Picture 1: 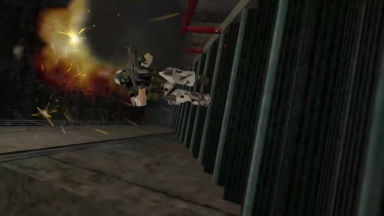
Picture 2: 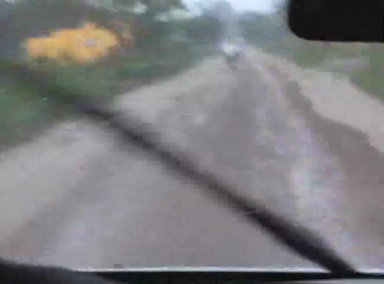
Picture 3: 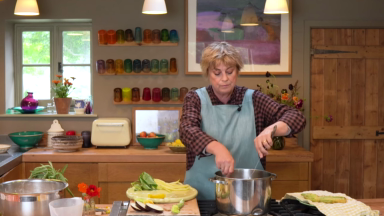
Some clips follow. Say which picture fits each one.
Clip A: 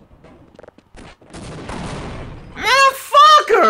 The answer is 1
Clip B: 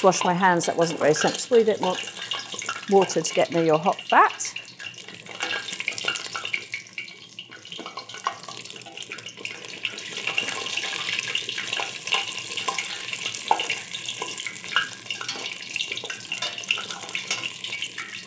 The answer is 3